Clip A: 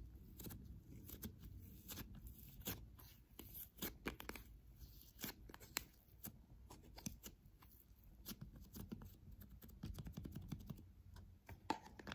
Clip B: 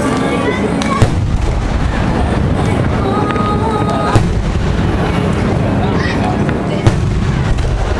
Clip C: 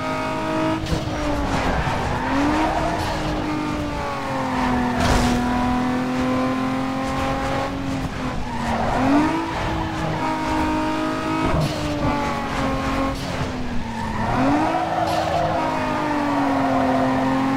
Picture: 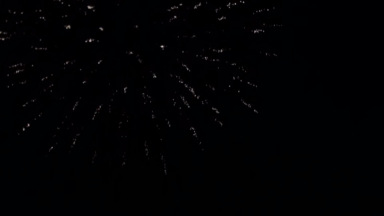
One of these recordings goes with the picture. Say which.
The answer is B